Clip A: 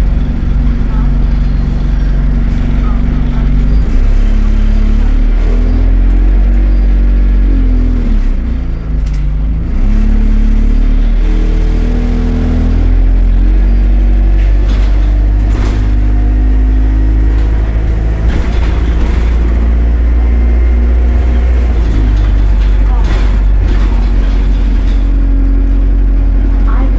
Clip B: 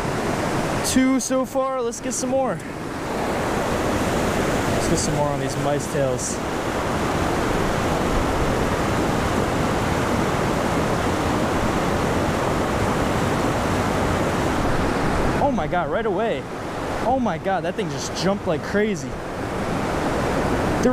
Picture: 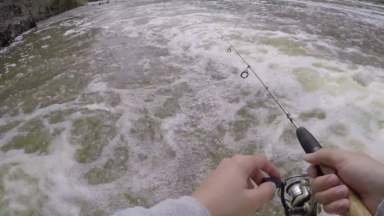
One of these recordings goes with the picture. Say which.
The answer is B